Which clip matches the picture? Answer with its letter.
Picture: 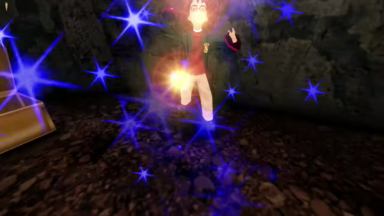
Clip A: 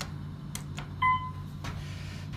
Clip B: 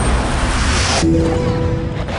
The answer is B